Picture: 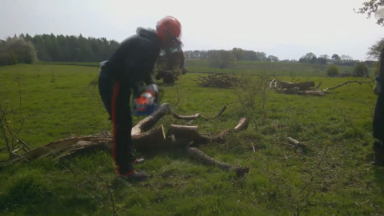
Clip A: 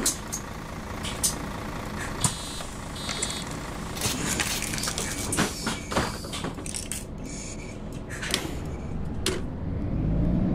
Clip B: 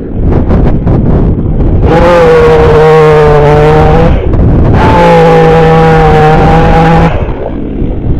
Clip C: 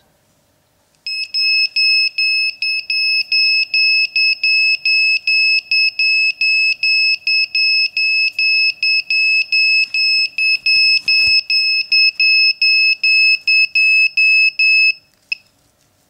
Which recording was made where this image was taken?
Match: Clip B